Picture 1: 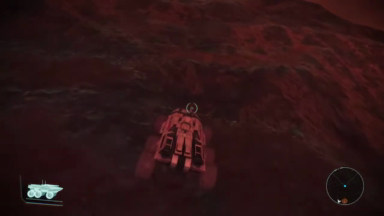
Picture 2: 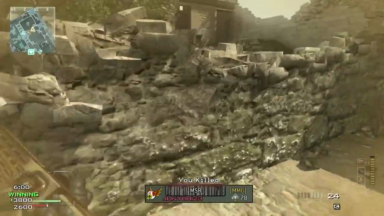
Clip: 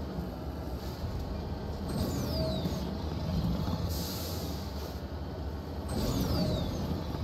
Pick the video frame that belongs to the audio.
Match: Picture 1